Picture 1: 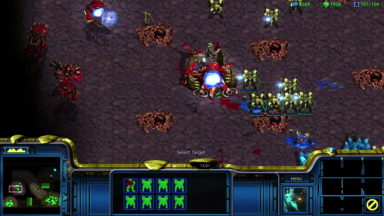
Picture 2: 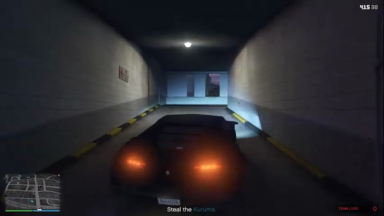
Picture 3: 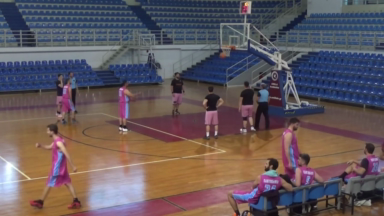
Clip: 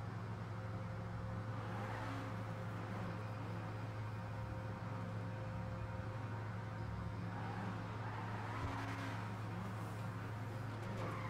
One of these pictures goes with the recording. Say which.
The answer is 2